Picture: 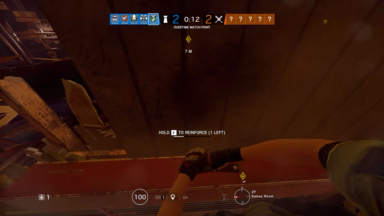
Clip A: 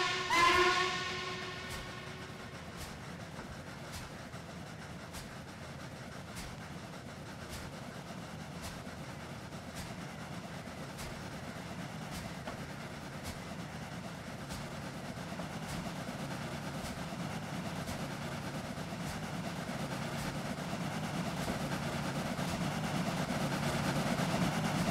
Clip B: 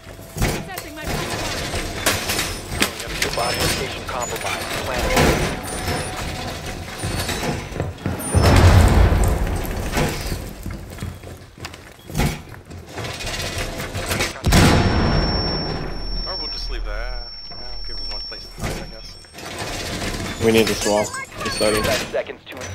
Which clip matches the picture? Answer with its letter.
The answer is B